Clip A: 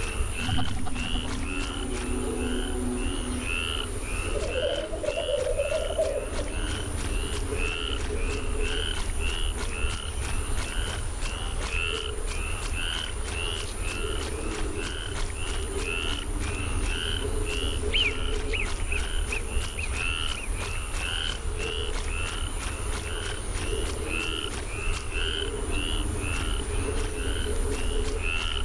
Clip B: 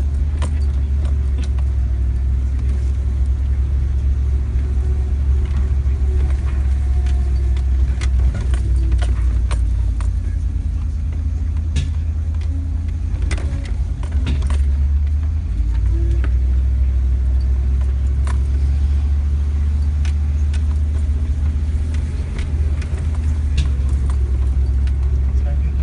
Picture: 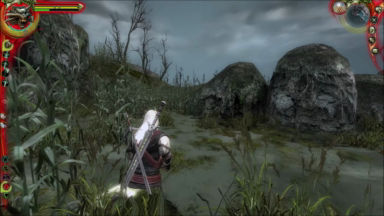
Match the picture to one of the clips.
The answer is A